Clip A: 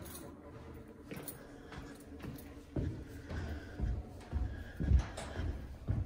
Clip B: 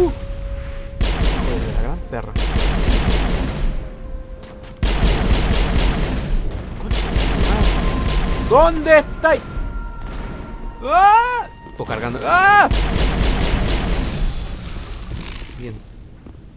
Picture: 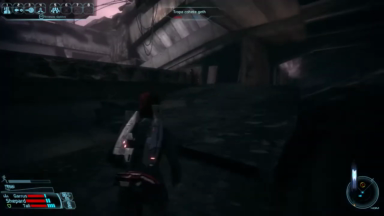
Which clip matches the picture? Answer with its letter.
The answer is B